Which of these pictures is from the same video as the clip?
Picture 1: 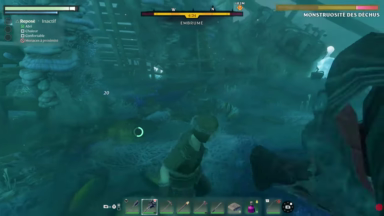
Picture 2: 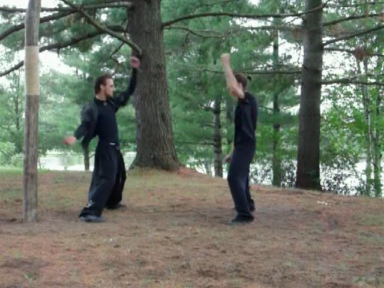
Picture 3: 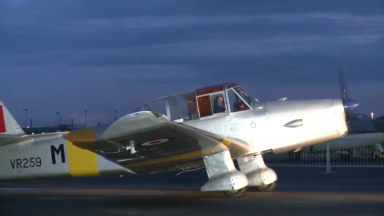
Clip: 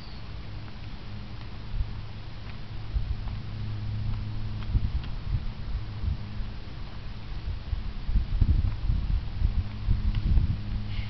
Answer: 2